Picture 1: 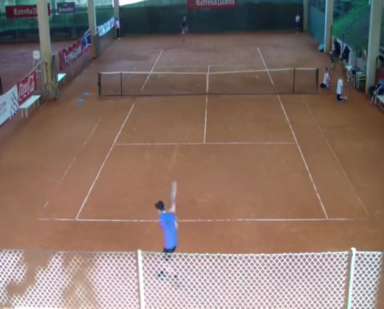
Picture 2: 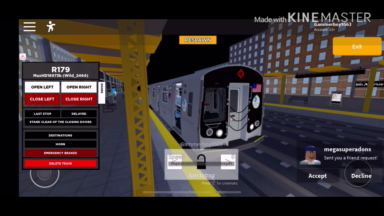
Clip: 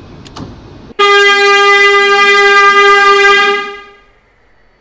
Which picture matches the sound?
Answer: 2